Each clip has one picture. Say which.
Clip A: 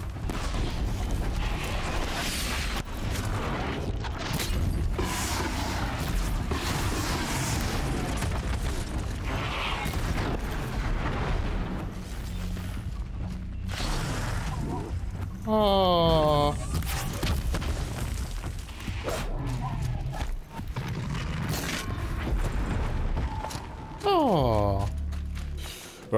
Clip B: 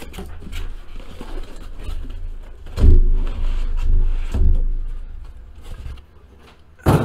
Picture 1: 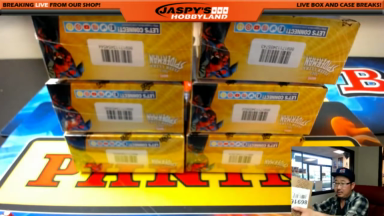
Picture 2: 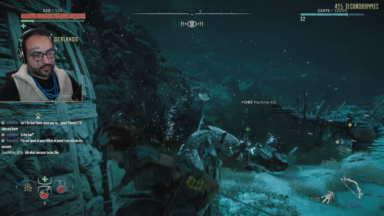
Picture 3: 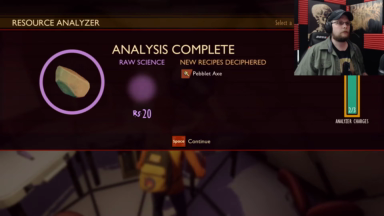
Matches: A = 2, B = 1